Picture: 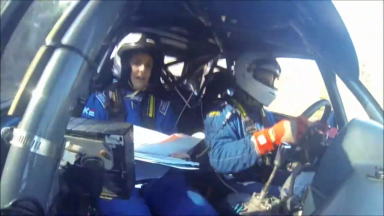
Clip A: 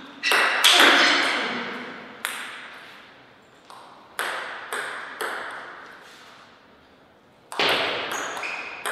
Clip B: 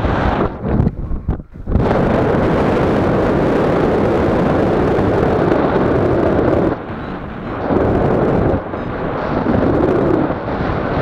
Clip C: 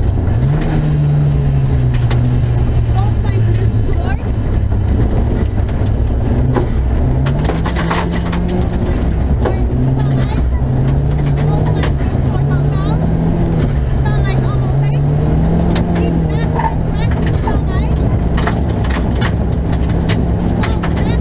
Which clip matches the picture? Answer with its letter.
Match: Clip C